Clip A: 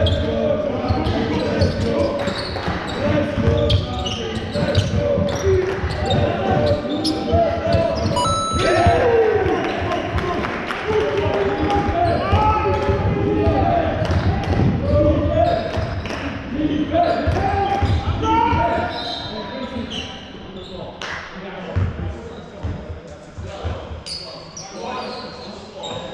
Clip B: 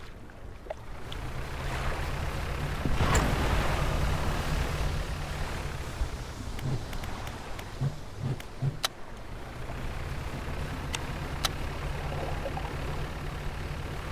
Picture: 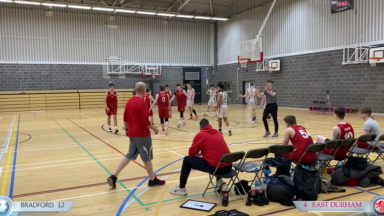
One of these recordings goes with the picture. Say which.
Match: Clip A